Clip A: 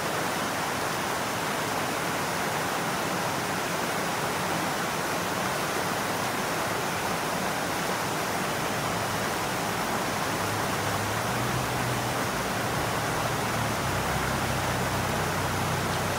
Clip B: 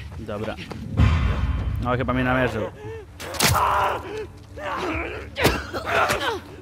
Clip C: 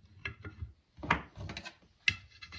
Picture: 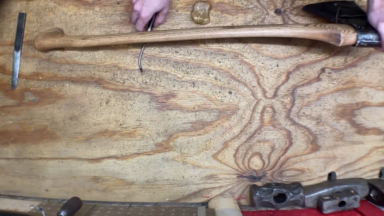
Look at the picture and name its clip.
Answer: C